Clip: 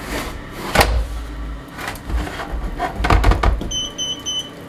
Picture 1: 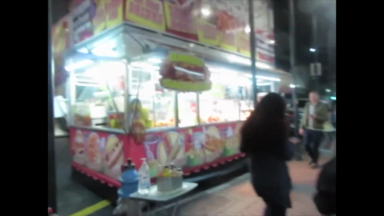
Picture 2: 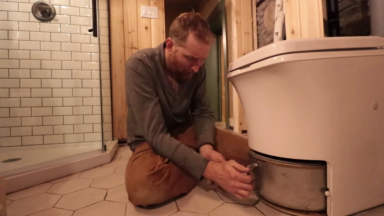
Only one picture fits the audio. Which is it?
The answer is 2